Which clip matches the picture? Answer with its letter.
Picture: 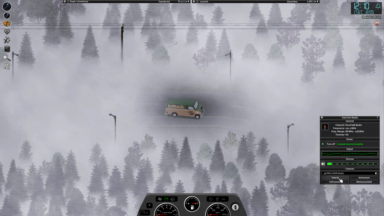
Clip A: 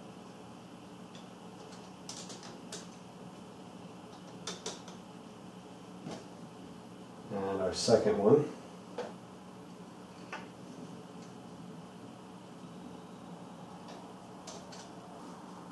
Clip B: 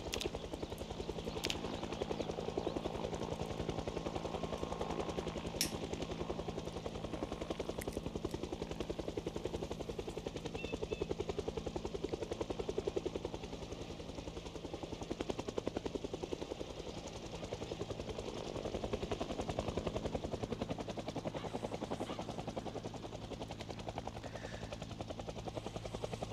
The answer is B